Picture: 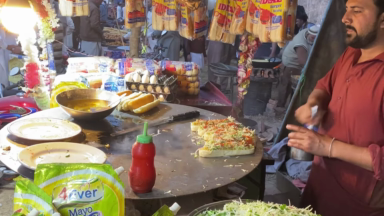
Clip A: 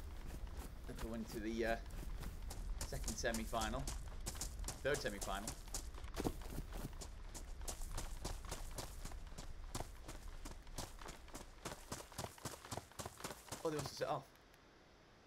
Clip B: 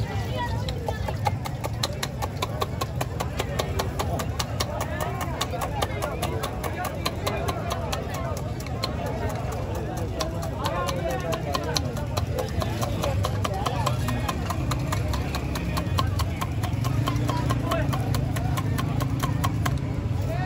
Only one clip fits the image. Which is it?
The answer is B